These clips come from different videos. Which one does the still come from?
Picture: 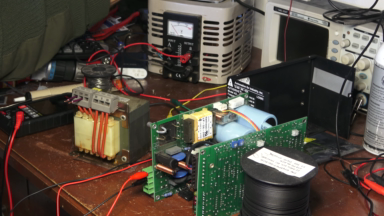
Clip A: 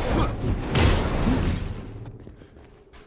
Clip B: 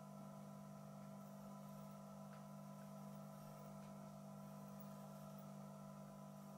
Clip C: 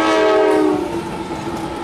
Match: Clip B